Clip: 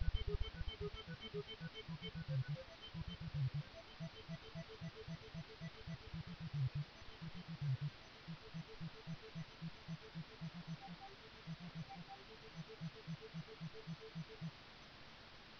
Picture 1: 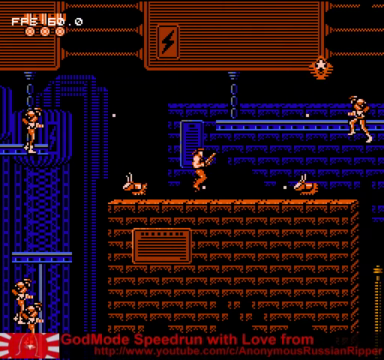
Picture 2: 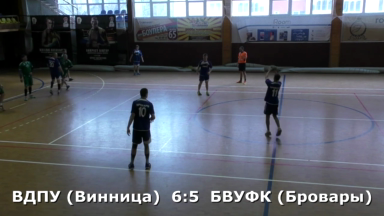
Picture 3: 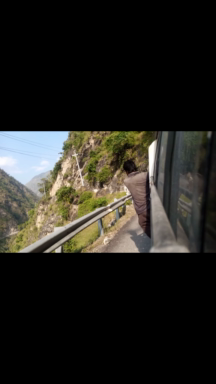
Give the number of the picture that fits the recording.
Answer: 1